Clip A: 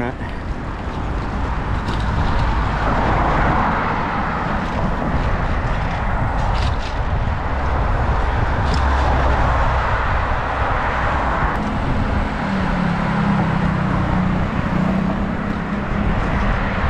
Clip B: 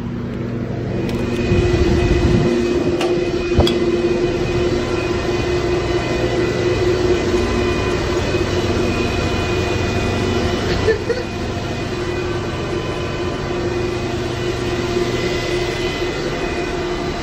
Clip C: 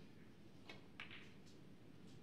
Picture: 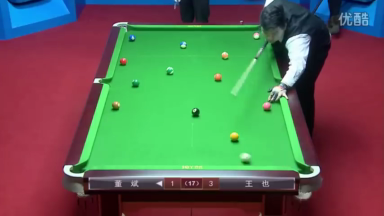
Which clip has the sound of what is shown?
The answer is C